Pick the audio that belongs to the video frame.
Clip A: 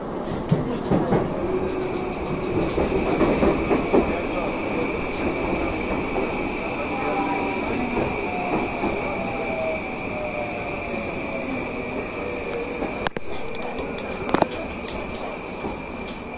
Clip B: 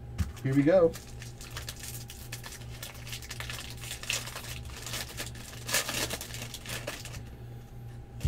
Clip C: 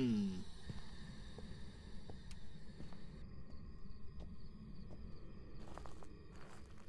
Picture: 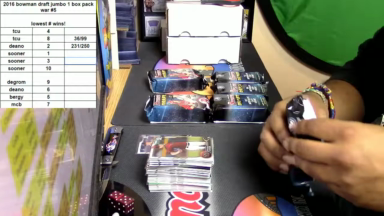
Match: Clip B